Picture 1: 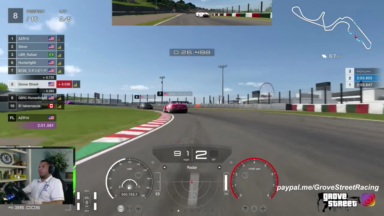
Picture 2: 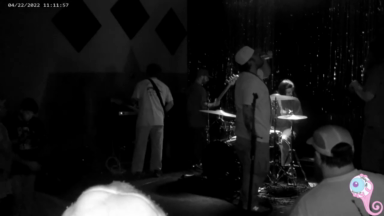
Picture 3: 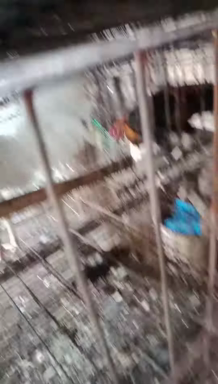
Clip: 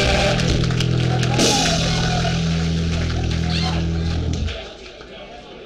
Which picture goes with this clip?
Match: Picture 2